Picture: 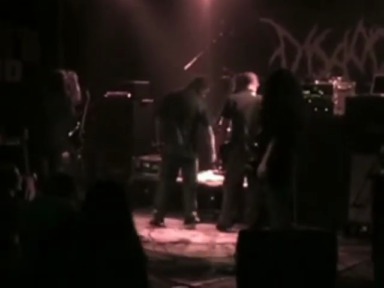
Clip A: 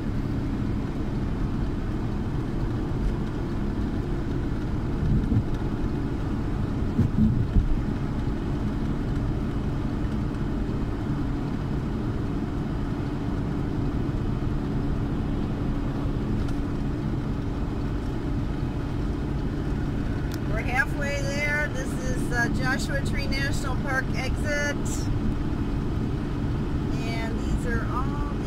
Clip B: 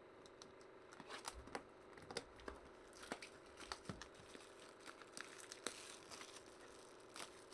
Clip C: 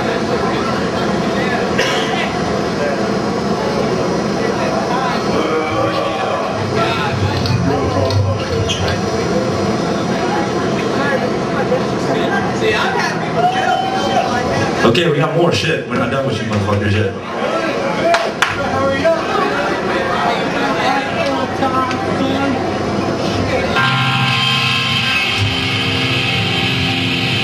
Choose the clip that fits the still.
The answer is C